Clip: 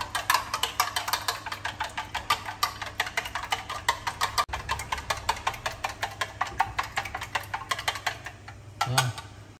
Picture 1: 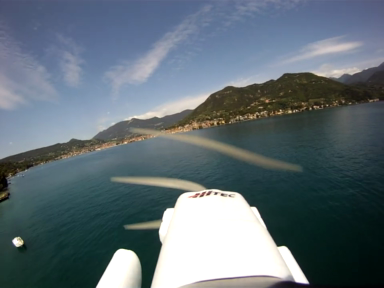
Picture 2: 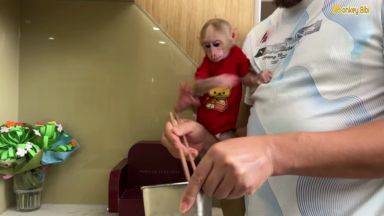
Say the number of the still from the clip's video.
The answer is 2